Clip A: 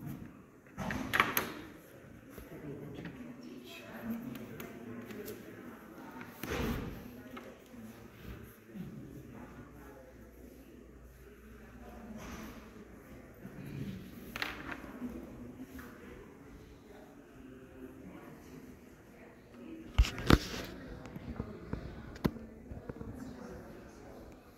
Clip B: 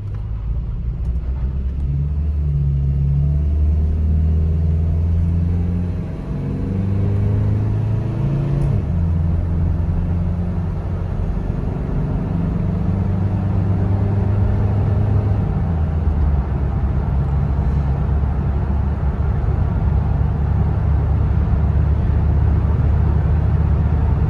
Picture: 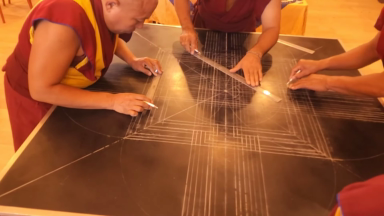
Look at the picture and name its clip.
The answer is A